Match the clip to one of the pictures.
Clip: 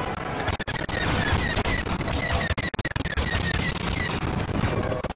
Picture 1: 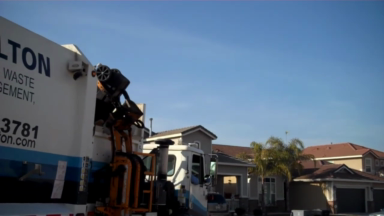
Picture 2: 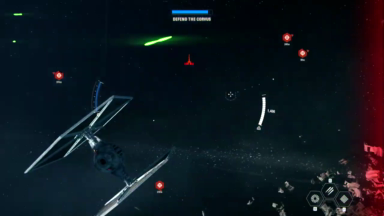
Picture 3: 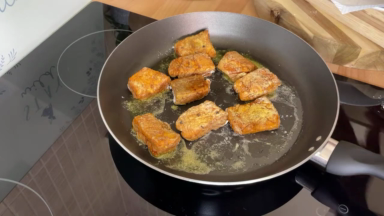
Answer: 2